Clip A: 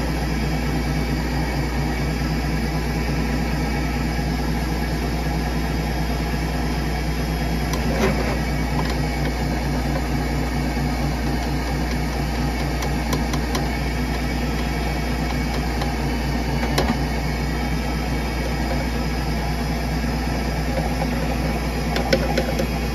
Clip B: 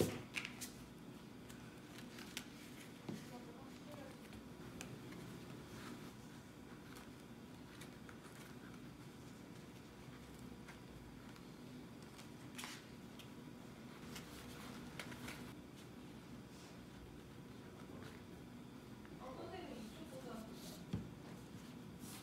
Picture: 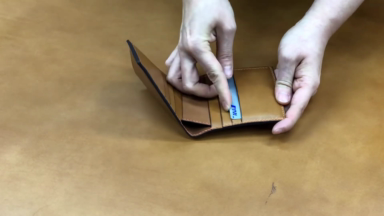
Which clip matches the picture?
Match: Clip B